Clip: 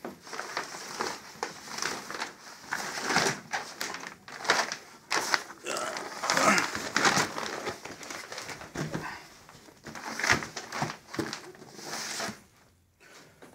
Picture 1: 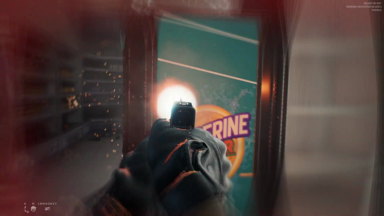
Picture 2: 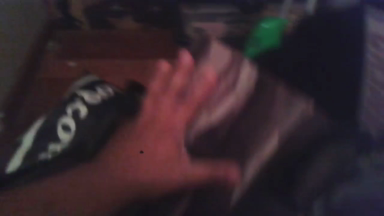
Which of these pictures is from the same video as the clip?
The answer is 2